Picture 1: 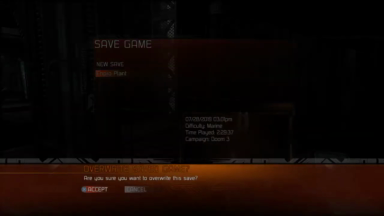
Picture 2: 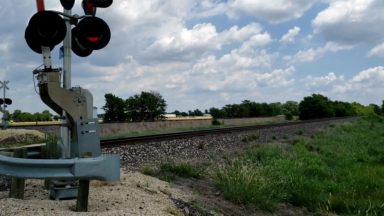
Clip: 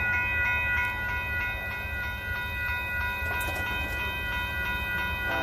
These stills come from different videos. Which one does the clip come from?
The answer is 2